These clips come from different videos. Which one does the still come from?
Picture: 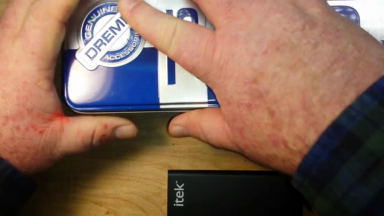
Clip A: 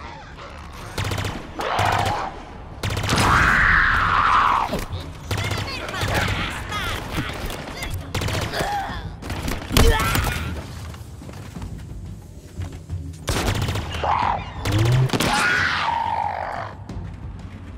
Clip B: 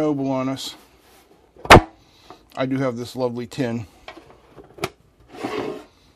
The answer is B